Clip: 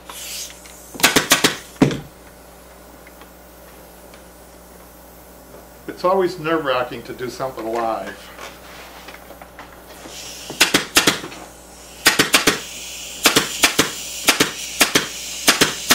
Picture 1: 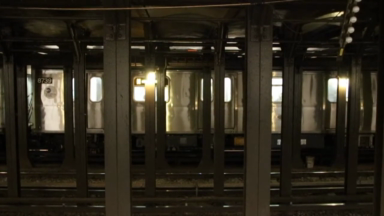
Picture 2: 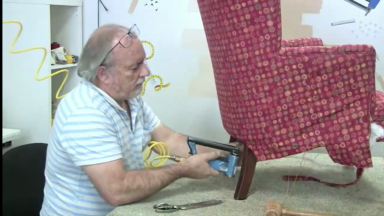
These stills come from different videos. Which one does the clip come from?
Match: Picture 2